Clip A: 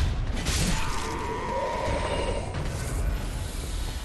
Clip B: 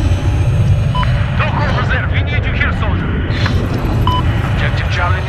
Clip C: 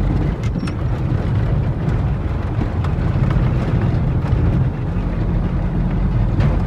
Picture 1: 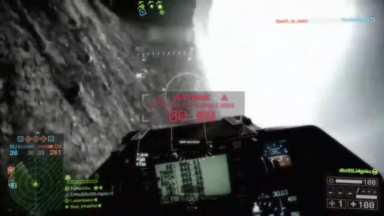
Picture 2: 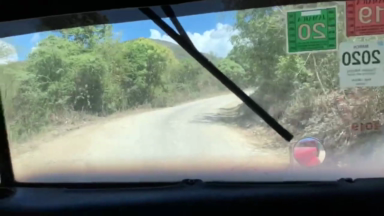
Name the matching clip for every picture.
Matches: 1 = B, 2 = C